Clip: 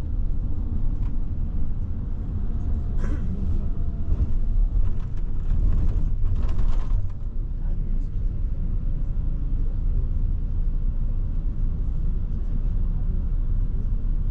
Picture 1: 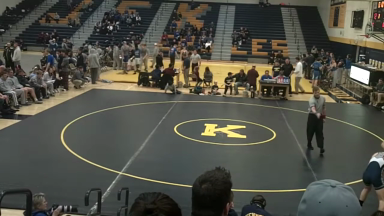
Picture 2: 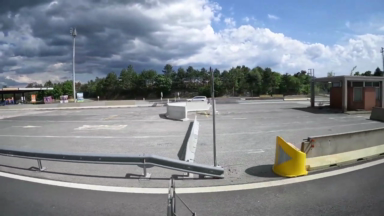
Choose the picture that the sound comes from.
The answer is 2